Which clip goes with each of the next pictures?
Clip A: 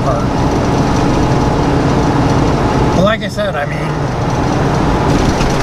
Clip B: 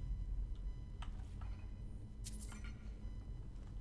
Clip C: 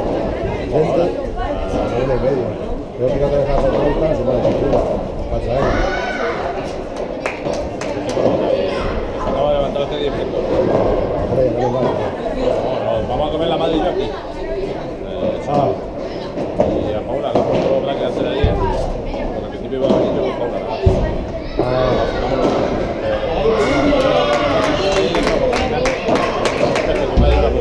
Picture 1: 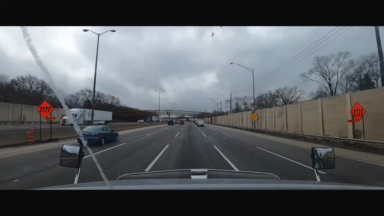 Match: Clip A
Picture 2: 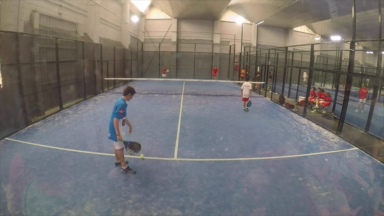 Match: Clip C